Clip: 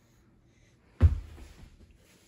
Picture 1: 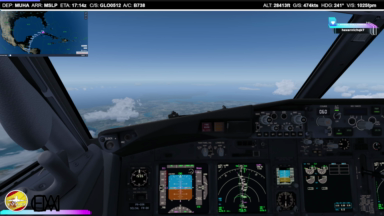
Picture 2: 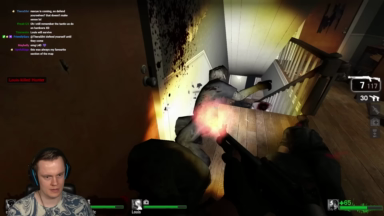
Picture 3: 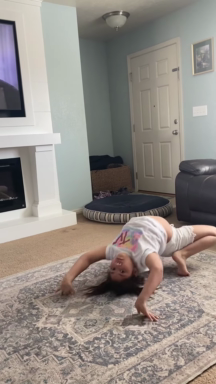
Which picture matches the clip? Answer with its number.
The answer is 3